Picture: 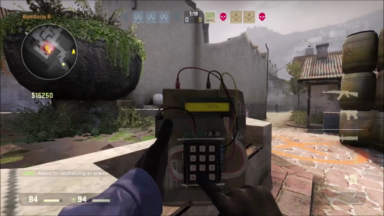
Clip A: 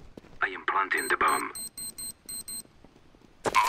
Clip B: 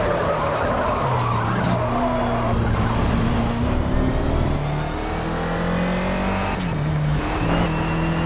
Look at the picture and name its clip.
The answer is A